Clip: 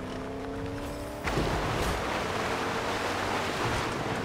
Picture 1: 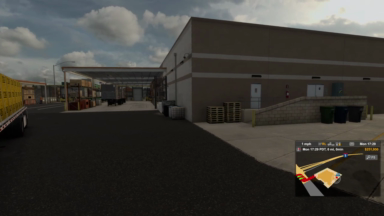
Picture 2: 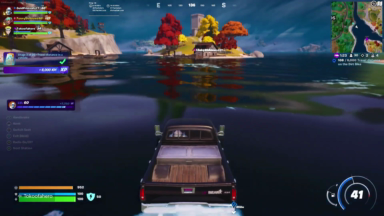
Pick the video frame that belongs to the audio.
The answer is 2